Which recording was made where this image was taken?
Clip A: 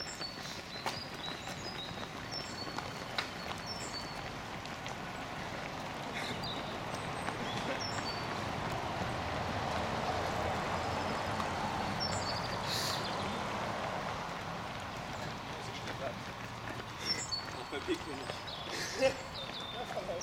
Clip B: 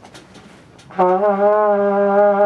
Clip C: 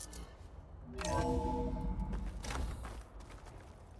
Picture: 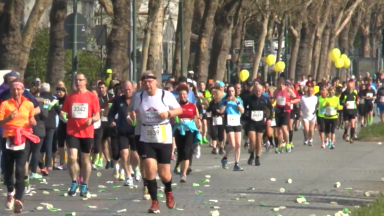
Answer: A